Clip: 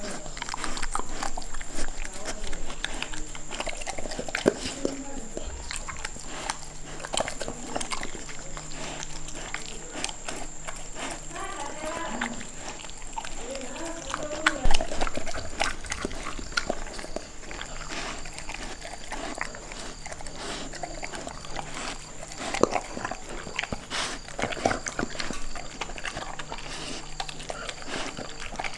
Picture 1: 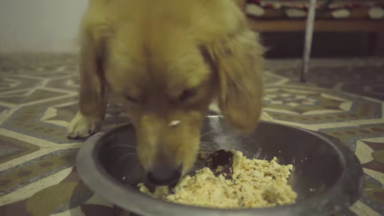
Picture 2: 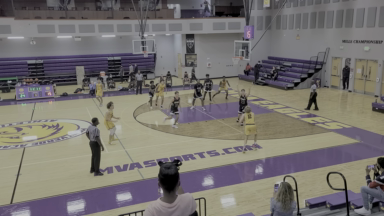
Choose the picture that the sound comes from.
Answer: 1